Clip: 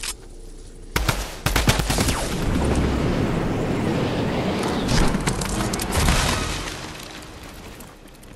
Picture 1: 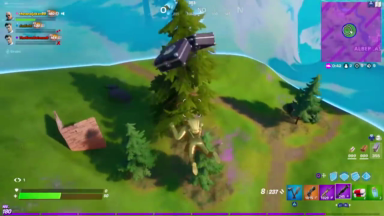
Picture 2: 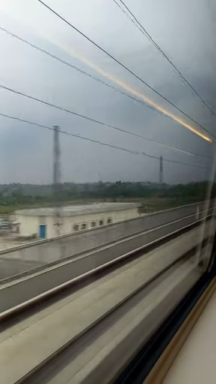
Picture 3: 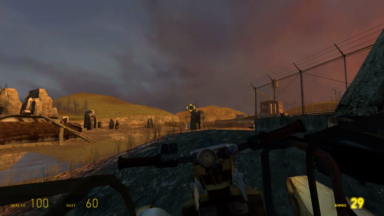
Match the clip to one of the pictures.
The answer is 1